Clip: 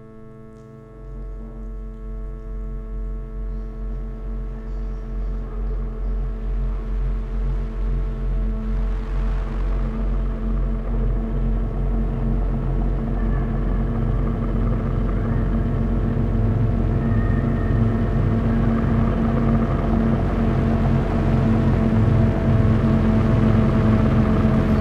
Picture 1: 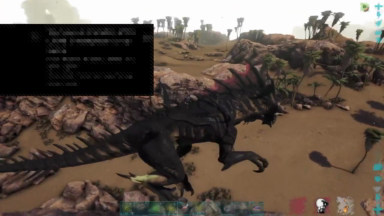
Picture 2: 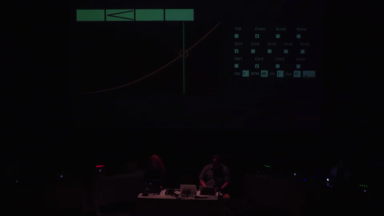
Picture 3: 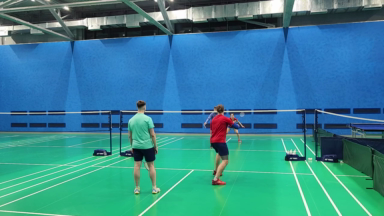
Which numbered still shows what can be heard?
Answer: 2